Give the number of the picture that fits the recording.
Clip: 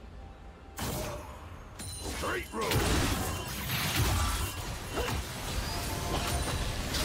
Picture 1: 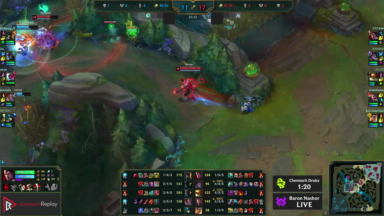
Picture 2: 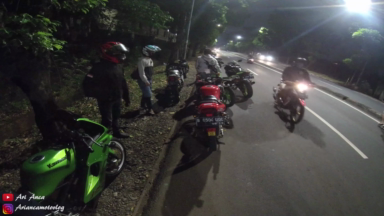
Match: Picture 1